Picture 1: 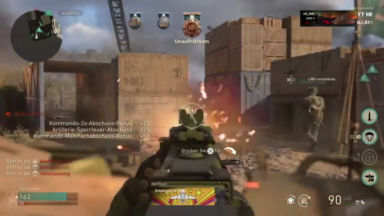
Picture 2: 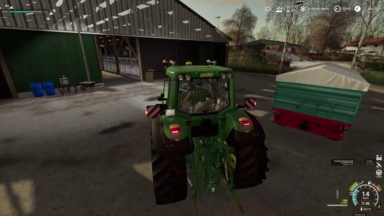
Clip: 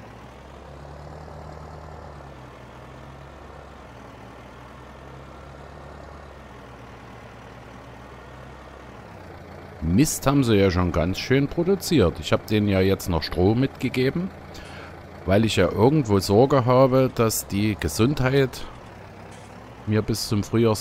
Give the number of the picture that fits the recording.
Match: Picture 2